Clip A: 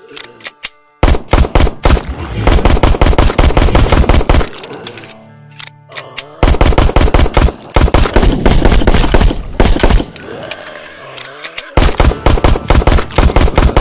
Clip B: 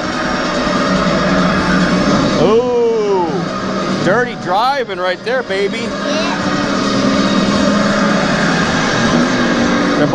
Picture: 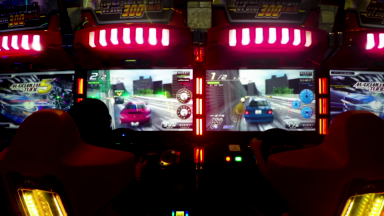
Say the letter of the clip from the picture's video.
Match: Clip B